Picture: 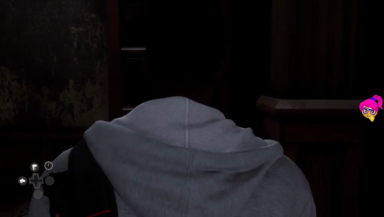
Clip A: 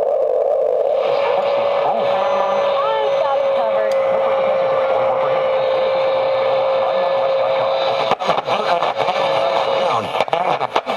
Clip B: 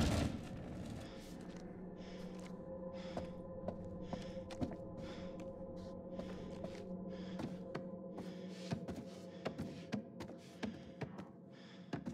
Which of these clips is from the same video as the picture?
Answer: B